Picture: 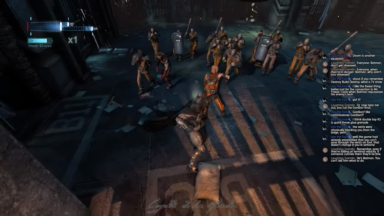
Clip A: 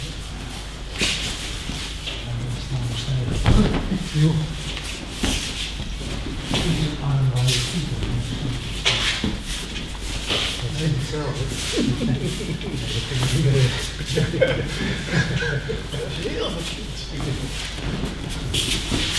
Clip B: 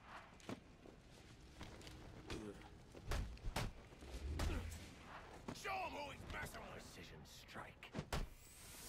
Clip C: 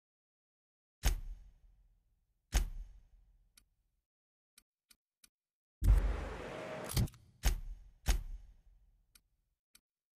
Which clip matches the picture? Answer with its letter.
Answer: B